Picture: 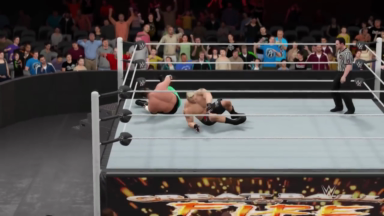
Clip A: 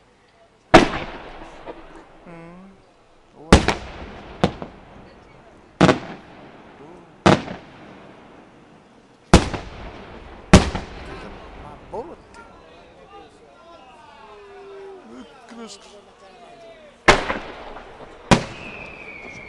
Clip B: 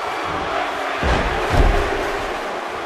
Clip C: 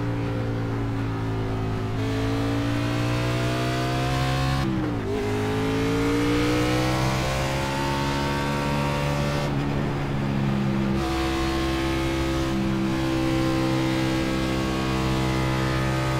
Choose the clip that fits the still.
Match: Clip B